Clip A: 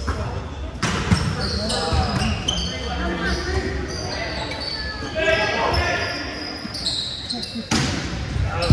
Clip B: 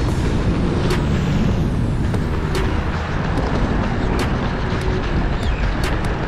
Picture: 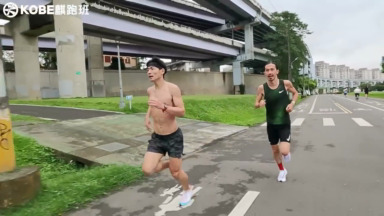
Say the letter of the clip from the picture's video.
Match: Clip B